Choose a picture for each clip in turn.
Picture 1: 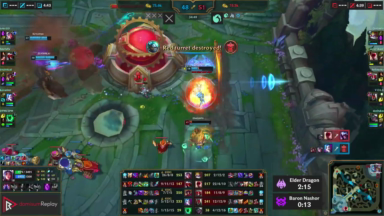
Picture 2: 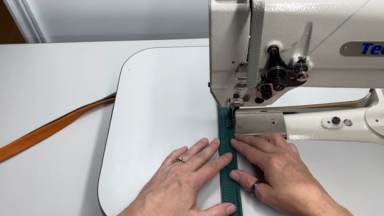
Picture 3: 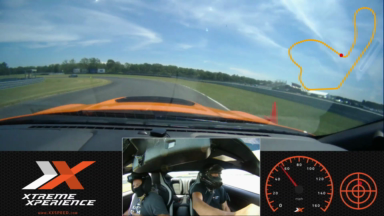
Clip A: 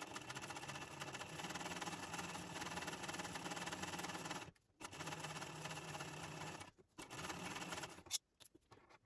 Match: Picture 2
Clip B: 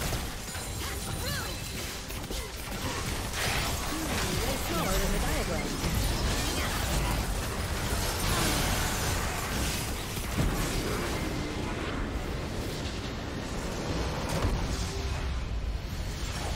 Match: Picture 1